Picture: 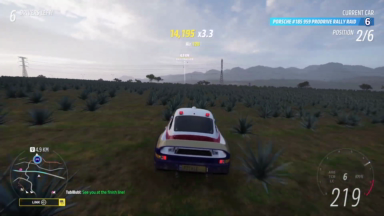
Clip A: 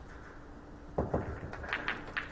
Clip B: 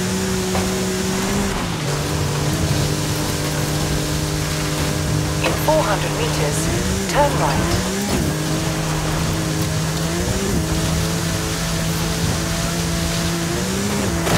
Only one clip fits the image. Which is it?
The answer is B